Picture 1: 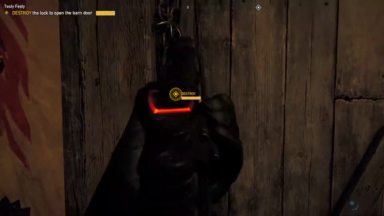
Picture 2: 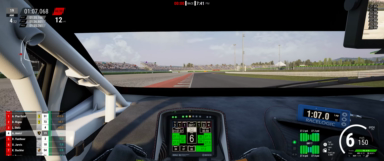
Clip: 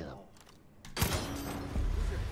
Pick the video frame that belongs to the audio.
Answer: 1